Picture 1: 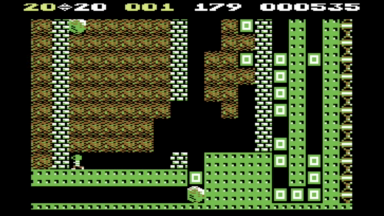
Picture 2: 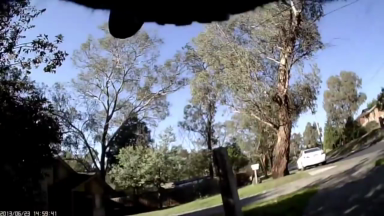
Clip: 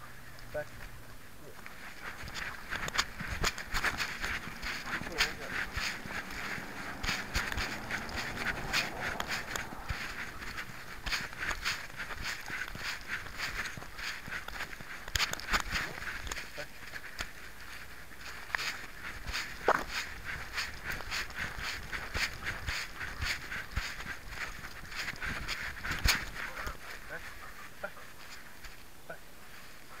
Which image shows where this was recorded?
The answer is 2